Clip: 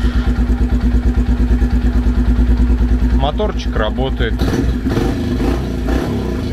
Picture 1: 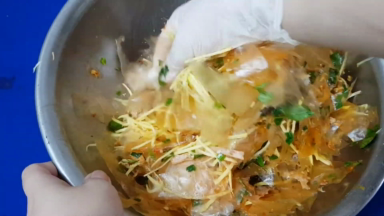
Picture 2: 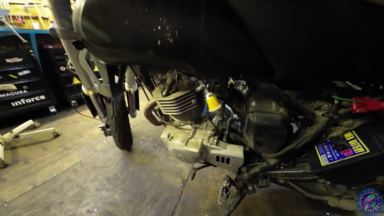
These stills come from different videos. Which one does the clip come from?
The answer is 2